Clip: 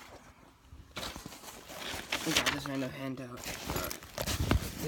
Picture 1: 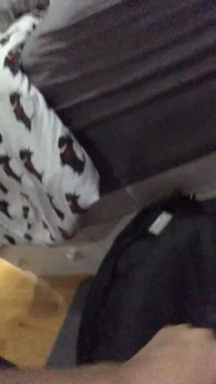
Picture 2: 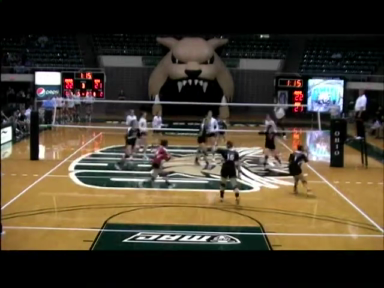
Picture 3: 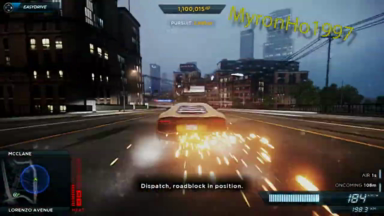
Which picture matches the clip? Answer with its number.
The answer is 1